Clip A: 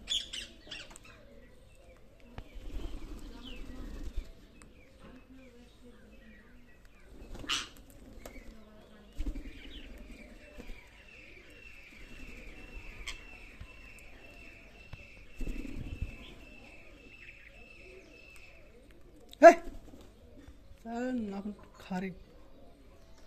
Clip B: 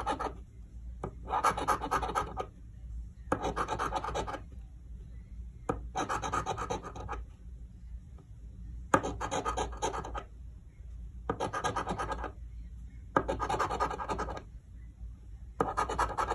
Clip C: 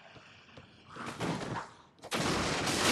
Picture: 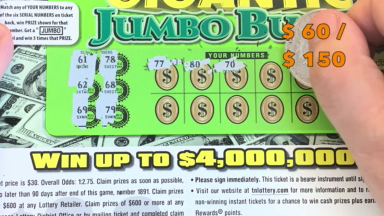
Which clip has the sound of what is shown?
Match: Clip B